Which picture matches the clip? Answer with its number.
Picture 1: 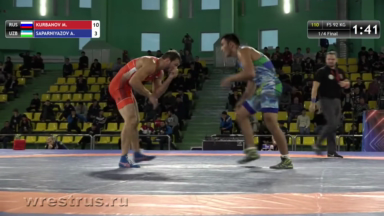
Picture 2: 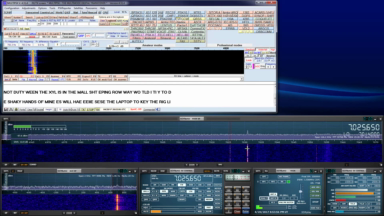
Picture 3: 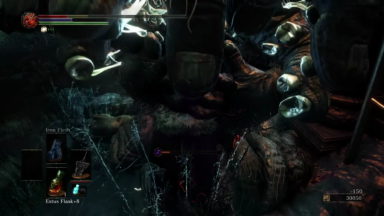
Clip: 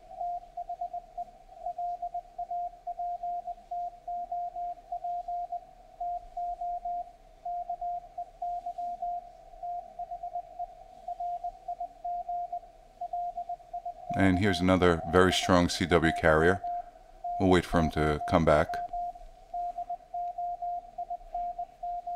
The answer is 2